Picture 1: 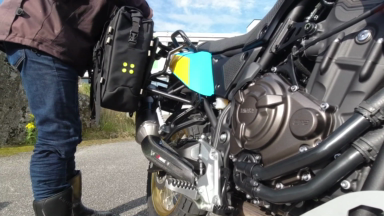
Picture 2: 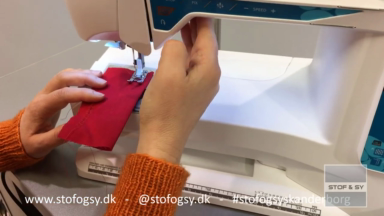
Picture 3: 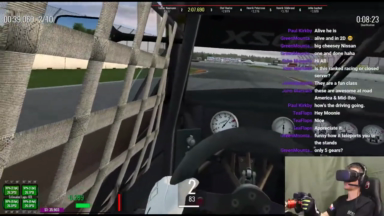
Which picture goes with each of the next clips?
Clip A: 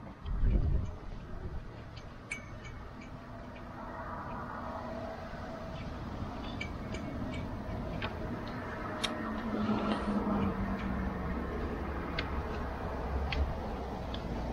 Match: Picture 1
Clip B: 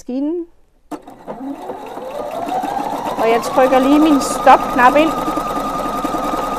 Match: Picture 2